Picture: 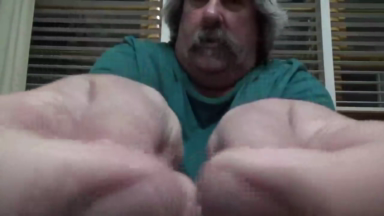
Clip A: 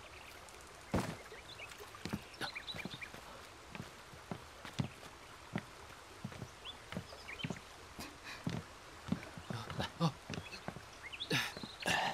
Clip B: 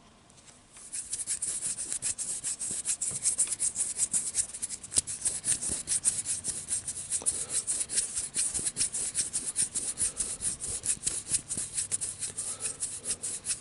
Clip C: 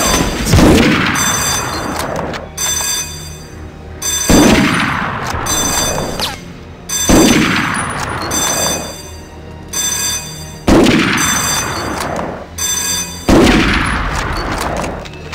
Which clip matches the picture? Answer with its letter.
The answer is B